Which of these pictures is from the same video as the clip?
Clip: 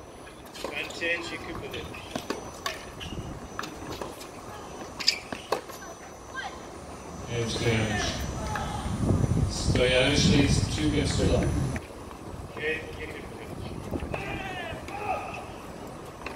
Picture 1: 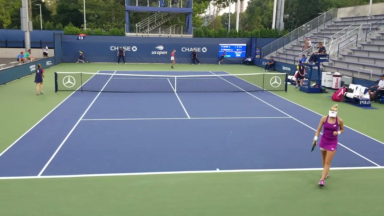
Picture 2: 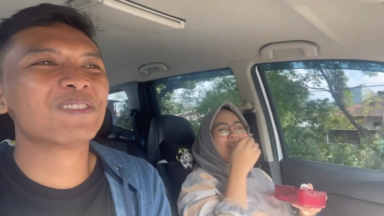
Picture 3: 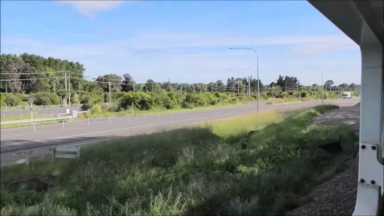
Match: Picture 1